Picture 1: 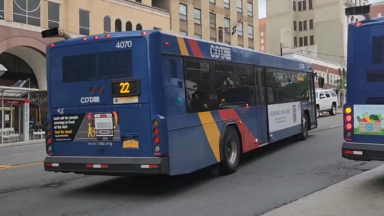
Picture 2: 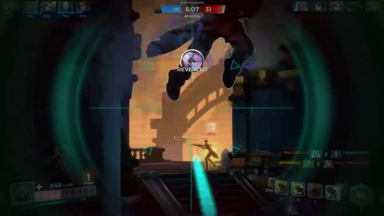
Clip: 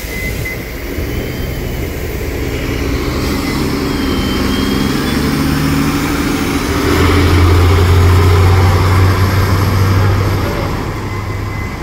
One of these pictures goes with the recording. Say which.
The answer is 1